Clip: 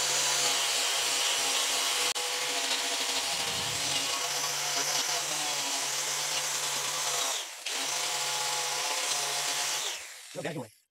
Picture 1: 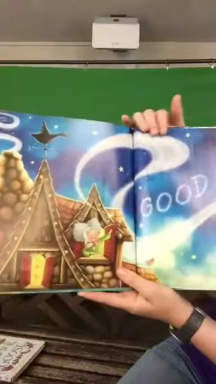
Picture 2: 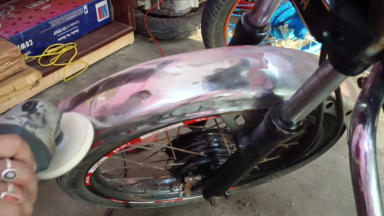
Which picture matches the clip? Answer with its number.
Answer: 2